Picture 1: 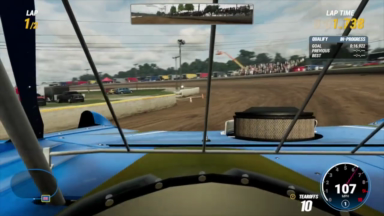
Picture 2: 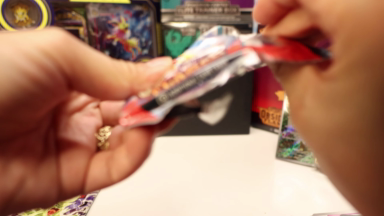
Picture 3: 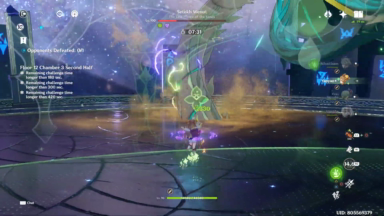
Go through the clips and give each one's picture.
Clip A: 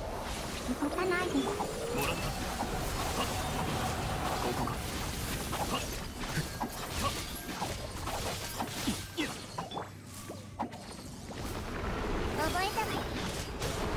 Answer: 3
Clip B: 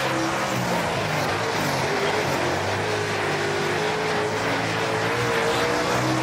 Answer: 1